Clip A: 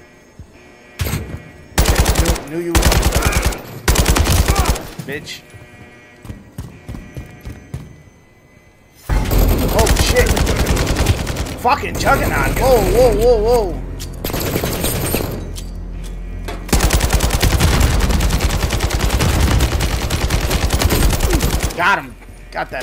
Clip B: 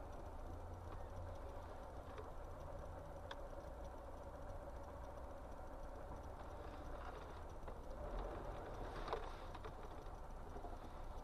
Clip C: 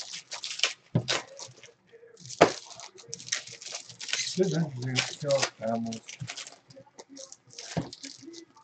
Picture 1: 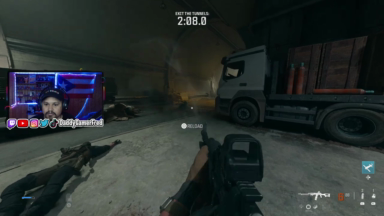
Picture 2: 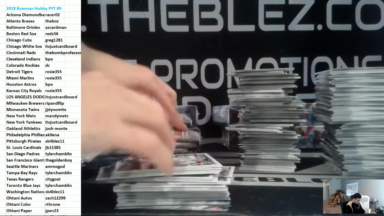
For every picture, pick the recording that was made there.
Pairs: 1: A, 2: C